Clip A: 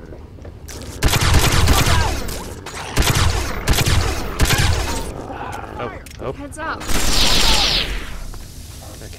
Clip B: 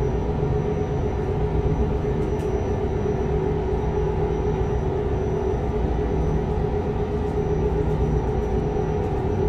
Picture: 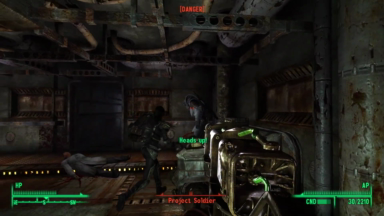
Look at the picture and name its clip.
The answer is A